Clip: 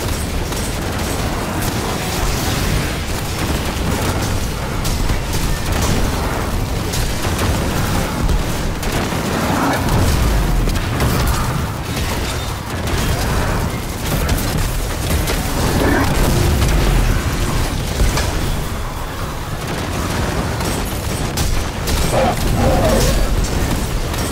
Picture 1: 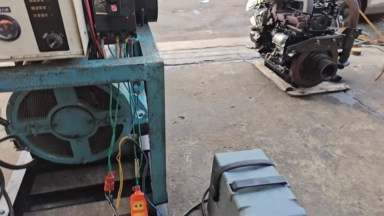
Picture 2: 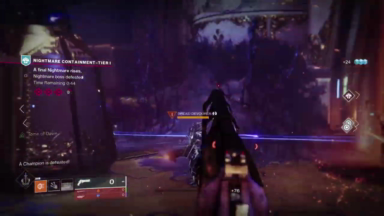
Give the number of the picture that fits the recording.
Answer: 2